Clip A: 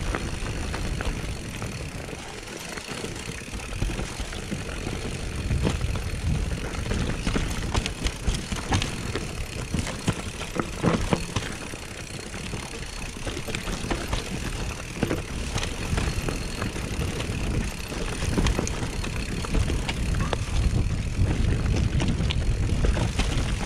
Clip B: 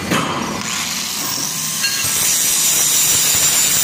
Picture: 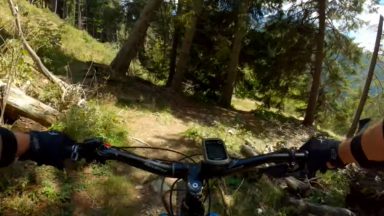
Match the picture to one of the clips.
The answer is A